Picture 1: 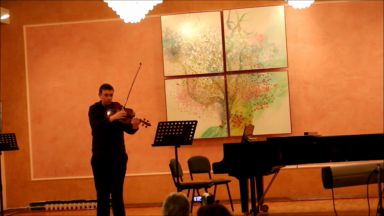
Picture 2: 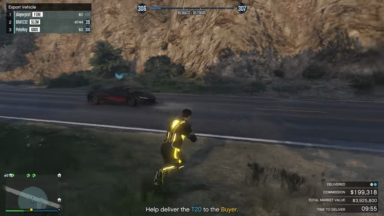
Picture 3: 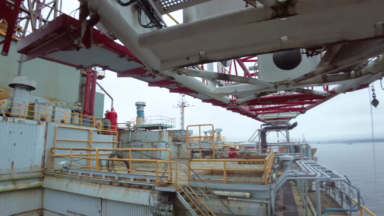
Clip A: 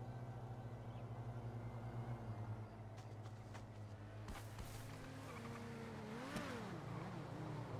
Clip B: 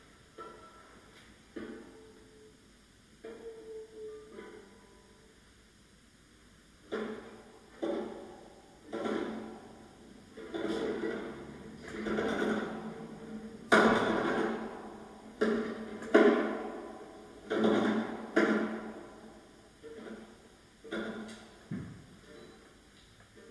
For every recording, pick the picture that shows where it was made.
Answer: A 2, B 1